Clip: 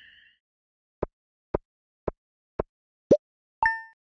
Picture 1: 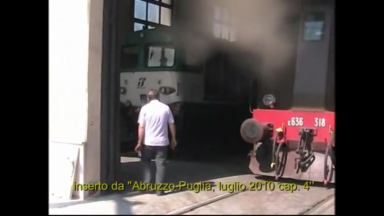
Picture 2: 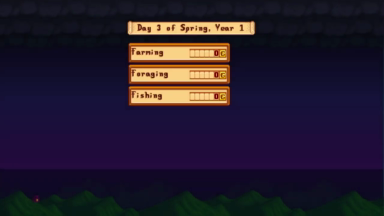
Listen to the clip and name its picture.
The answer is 2